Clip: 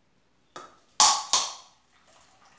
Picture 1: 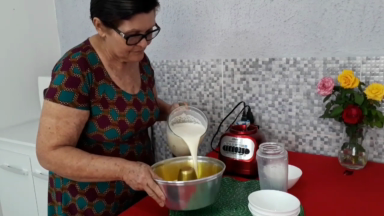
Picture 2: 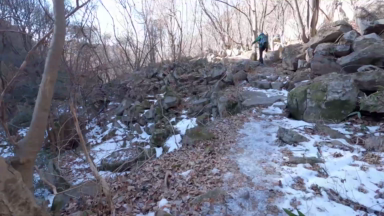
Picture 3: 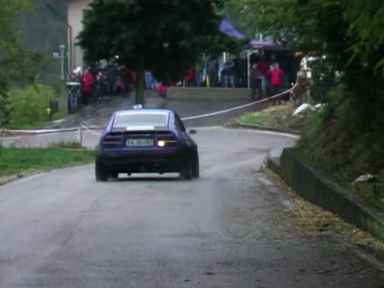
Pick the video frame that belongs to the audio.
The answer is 1